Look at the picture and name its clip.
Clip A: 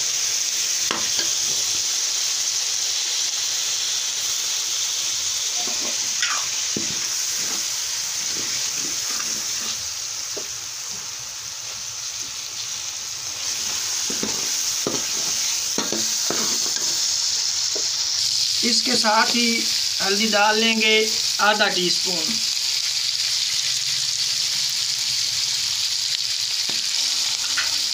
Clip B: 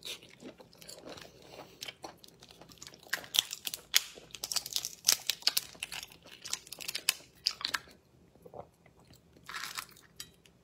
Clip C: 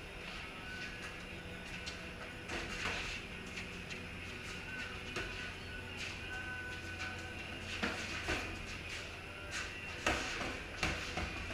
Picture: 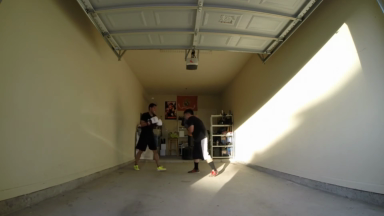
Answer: C